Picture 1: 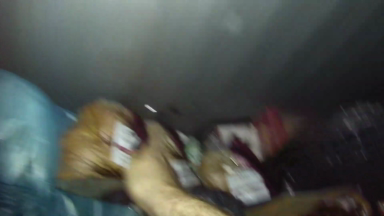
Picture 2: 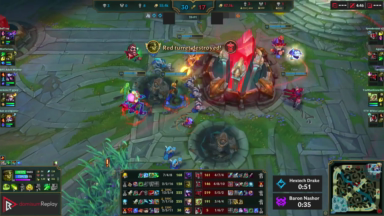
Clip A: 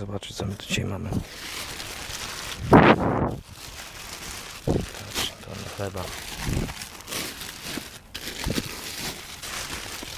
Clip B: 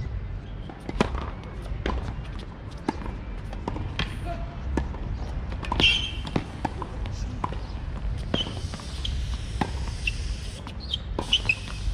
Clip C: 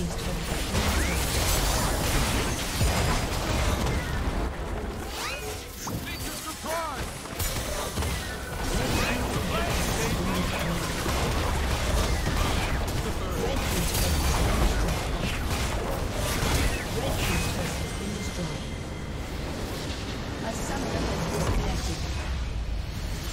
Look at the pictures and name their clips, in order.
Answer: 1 A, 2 C